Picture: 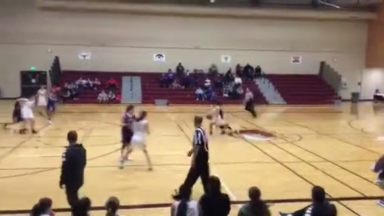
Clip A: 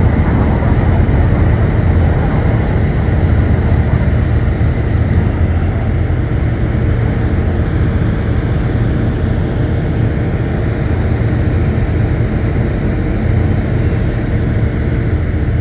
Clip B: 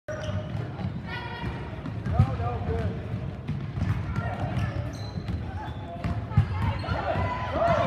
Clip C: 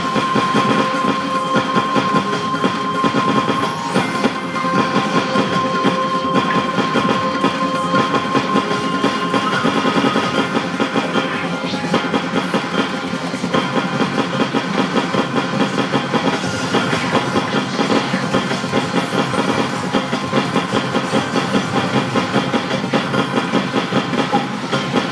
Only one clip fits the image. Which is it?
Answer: B